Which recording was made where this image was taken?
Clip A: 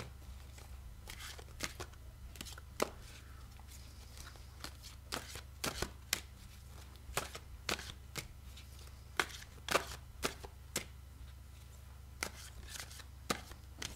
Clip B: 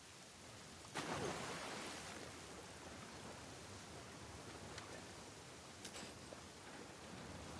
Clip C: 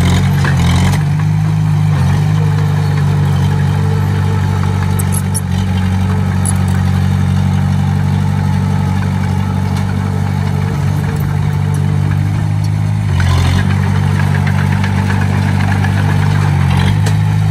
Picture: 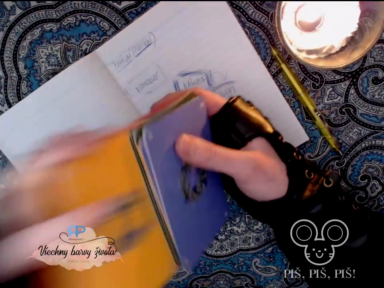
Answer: A